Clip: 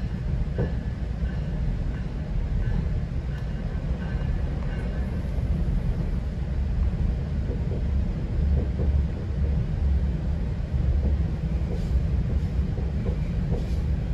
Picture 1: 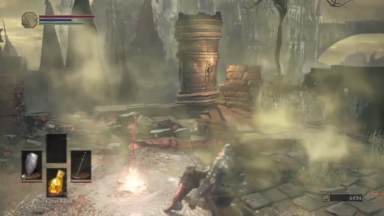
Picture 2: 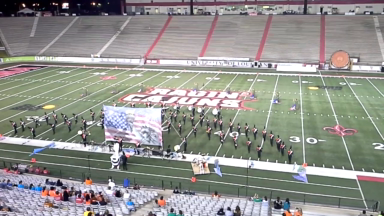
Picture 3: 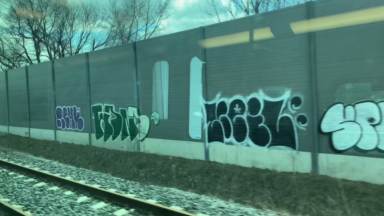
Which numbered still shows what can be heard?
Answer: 3